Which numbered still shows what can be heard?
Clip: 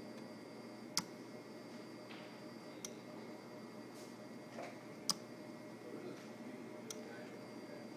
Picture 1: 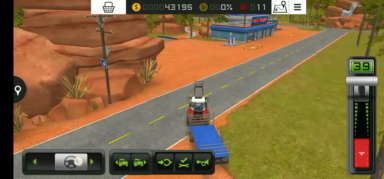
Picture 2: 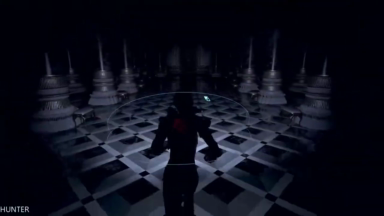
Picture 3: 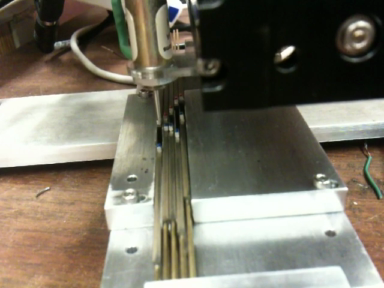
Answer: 3